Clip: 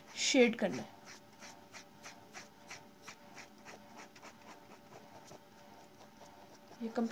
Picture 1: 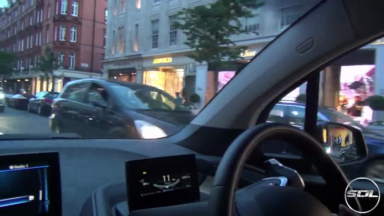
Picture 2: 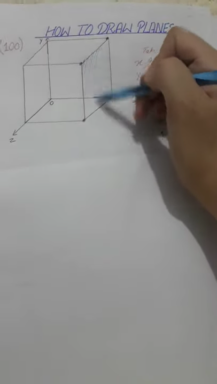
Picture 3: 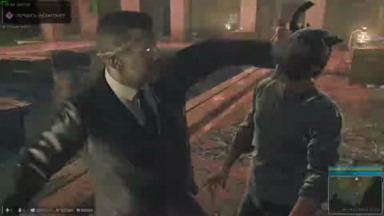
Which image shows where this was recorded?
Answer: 2